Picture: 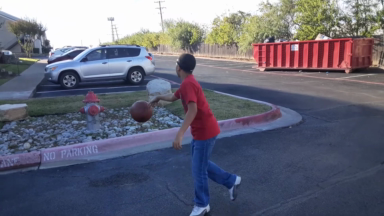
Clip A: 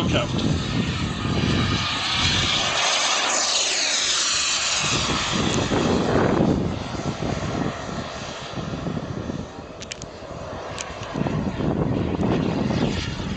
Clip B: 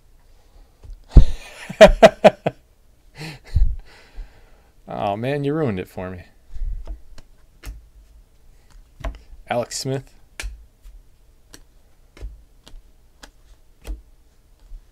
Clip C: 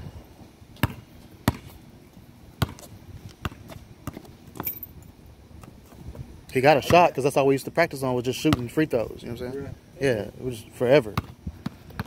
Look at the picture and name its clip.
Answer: C